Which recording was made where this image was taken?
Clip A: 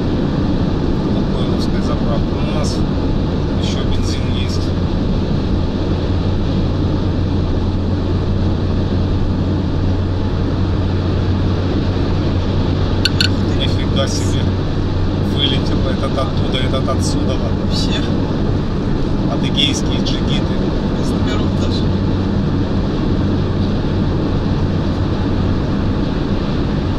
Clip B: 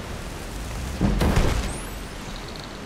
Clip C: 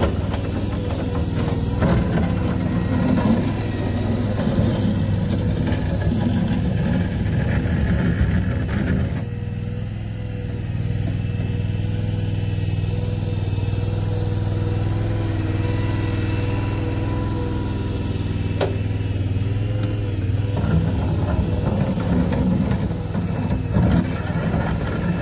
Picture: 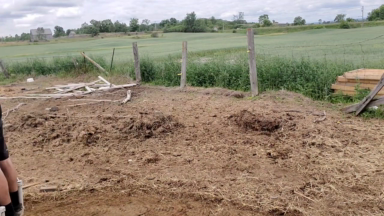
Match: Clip C